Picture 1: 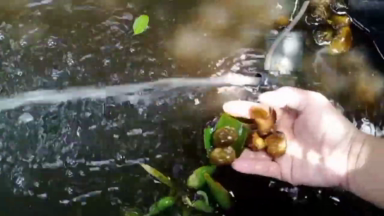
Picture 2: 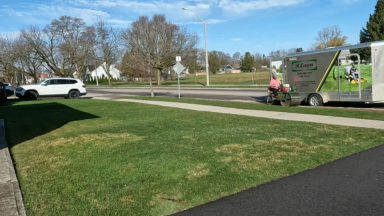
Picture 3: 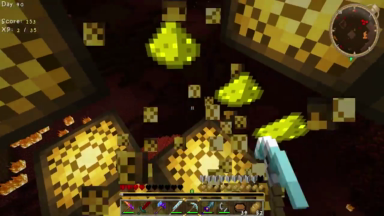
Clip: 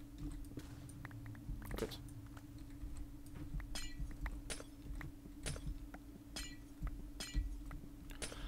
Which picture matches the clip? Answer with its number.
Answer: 3